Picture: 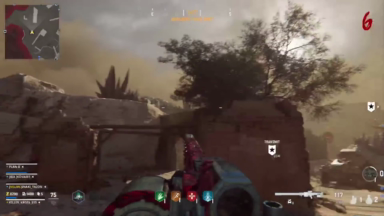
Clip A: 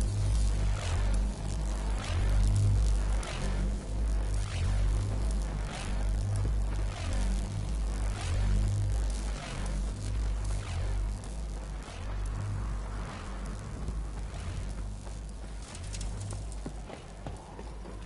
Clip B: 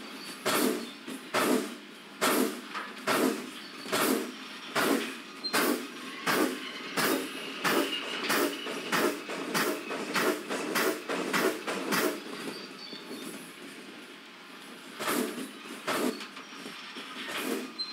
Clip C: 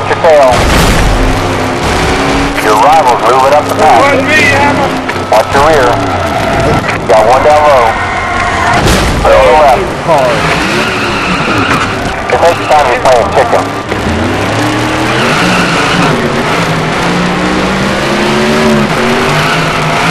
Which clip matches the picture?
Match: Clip A